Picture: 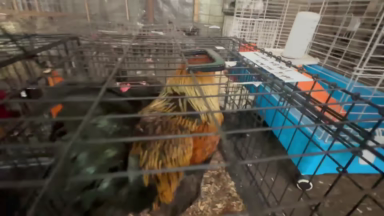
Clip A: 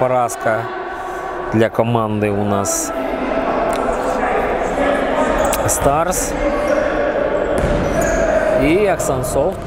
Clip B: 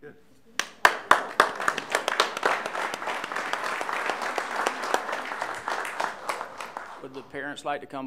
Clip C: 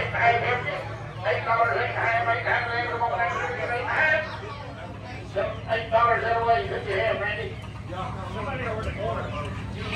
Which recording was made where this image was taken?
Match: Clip C